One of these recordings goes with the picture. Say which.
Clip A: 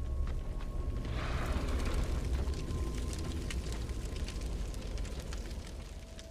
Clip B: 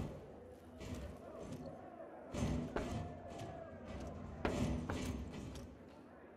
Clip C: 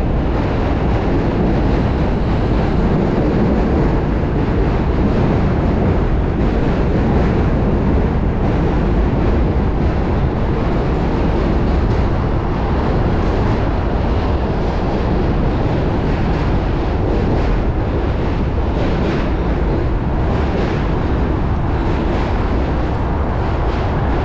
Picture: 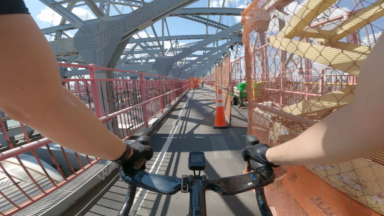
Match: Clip C